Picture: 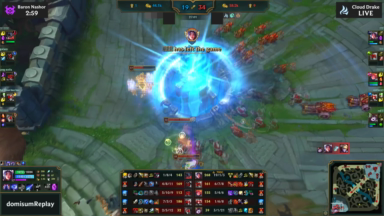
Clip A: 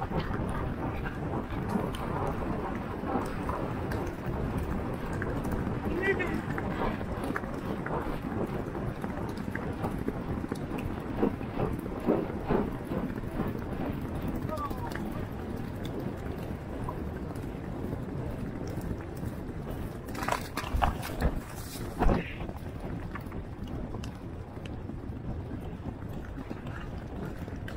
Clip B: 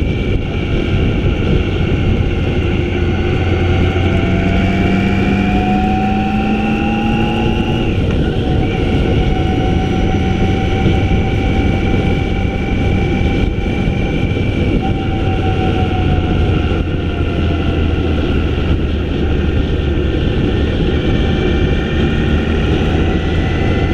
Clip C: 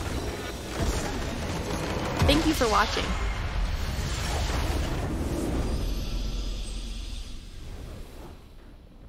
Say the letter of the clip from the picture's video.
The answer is C